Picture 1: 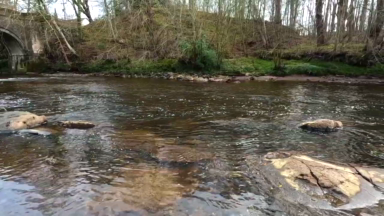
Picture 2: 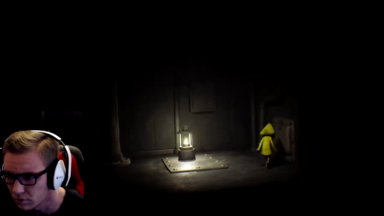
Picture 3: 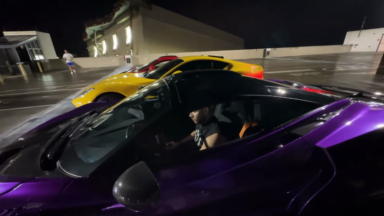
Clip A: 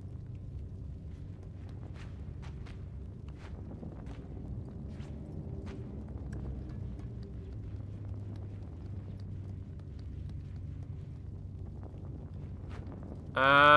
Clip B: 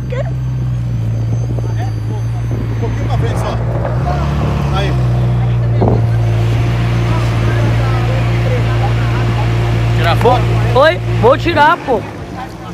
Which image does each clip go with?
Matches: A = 2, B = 3